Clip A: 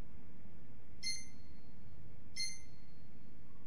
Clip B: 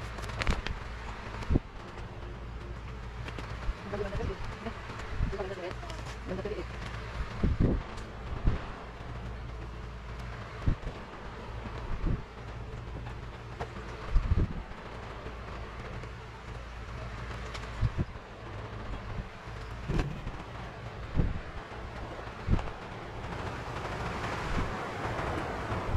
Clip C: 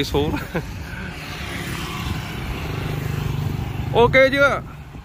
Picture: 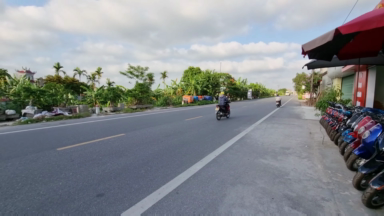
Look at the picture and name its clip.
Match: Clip C